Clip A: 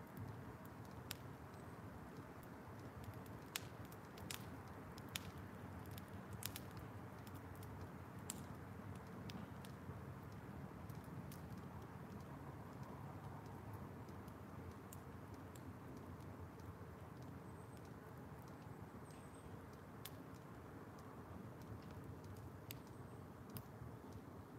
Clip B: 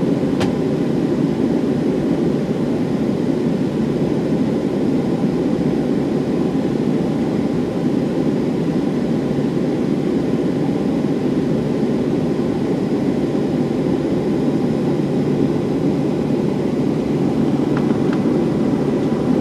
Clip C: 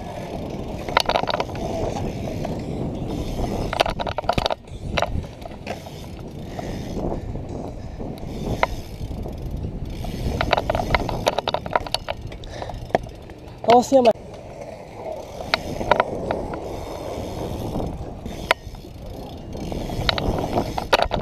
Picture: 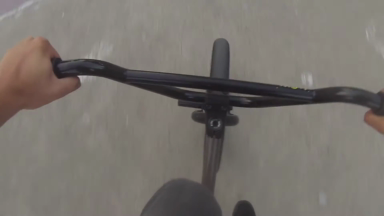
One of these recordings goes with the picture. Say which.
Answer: C